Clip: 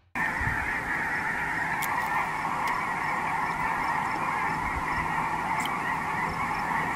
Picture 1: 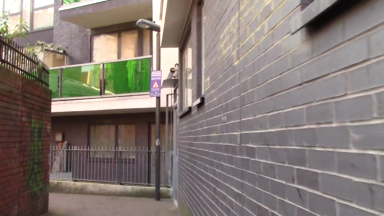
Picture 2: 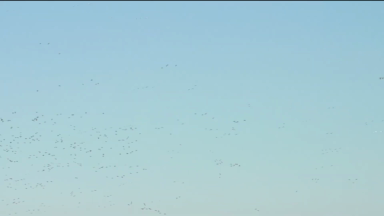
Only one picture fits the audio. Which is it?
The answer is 2